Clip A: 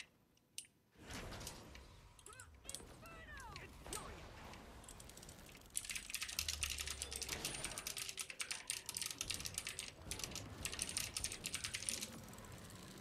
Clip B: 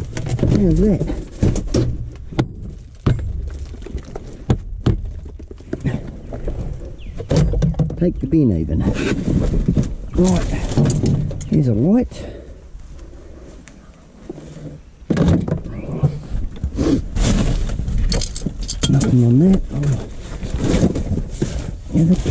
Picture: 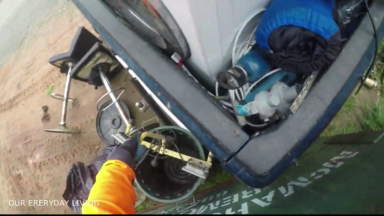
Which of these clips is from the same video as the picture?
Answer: B